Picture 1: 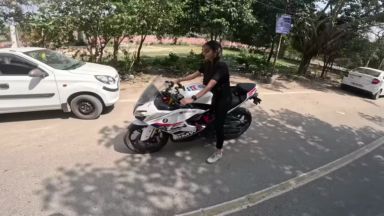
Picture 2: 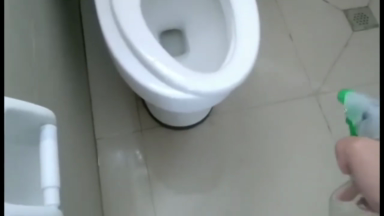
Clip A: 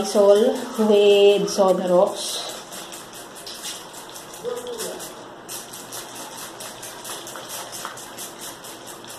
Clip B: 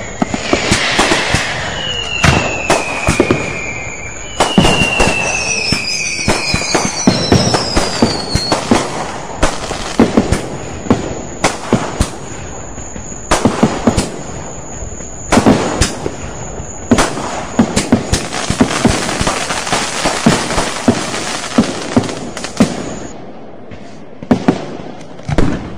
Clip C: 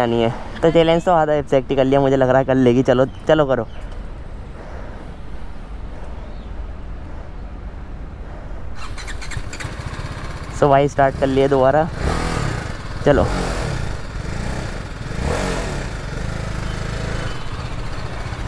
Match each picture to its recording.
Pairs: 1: C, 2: A